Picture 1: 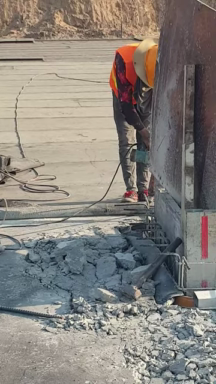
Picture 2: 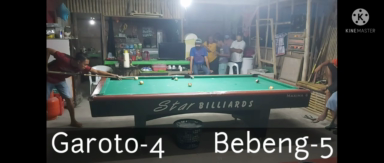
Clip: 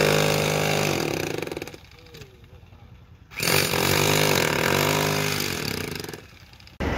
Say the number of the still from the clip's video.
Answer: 1